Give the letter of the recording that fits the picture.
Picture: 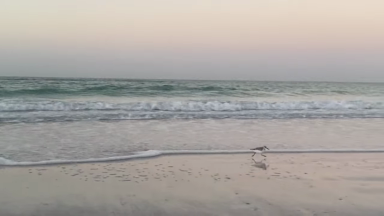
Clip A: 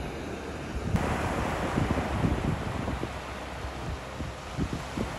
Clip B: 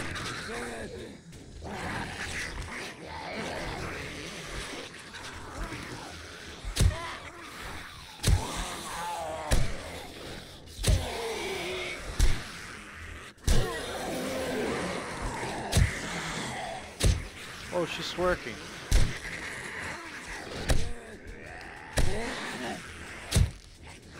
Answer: A